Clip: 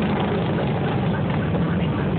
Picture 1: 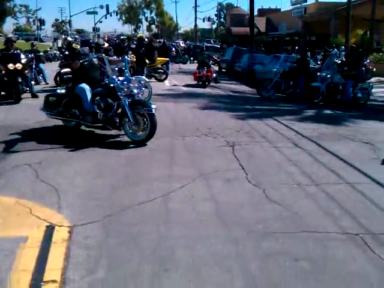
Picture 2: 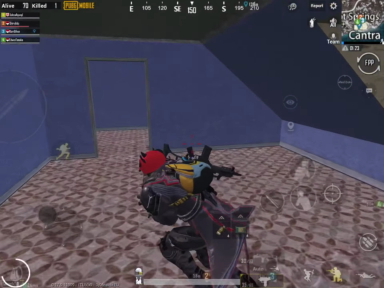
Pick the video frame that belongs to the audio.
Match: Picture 1